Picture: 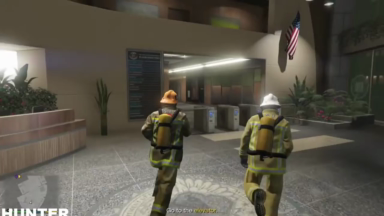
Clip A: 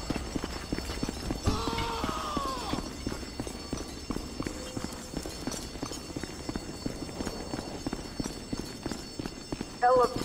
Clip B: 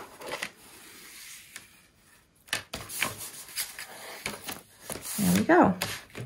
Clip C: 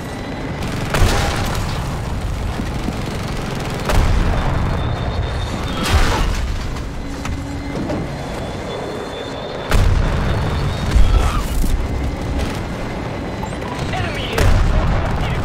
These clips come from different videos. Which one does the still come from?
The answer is A